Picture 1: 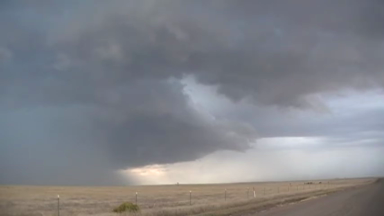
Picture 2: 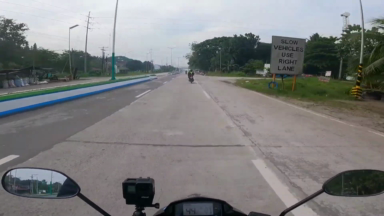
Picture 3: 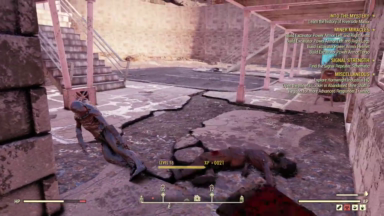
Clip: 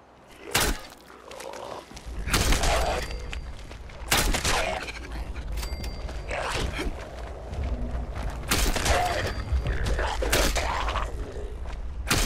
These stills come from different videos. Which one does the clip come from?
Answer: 3